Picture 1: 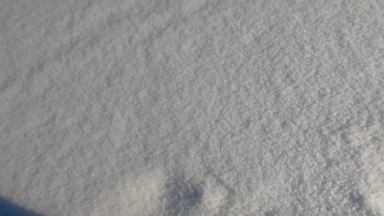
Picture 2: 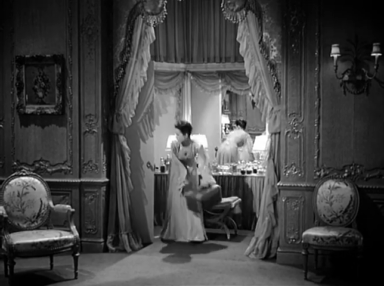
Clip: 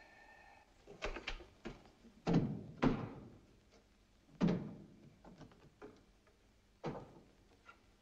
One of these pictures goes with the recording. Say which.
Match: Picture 2